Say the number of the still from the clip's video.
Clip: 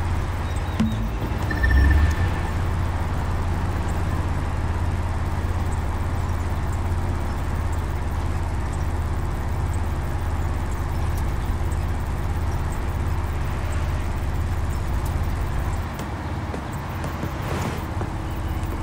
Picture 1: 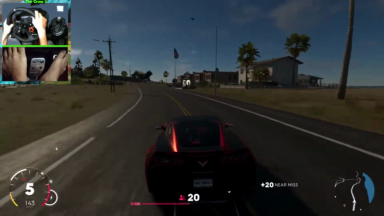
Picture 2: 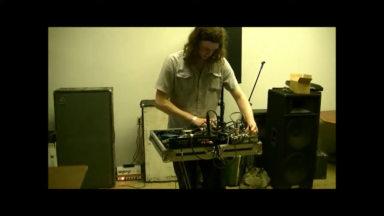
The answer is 1